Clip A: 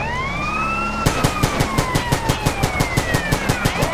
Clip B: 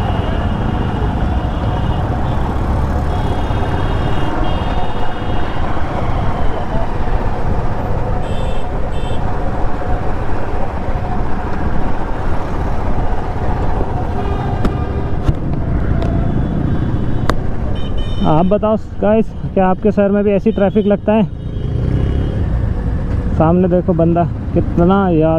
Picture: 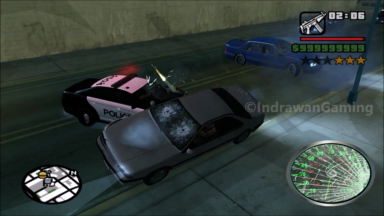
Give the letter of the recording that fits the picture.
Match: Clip A